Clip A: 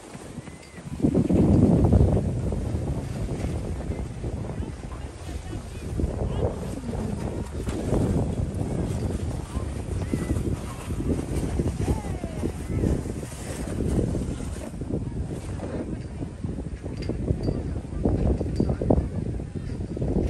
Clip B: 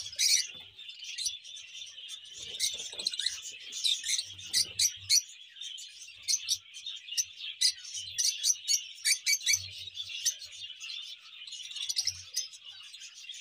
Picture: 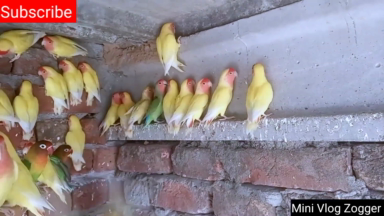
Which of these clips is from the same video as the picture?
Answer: B